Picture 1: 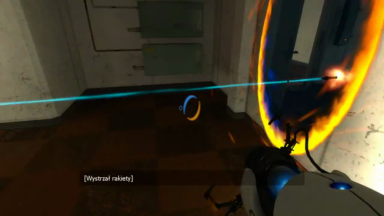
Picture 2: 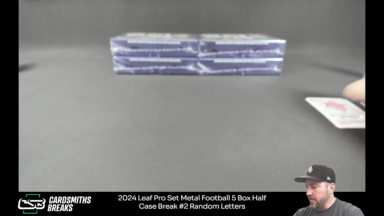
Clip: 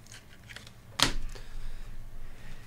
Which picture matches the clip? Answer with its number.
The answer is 2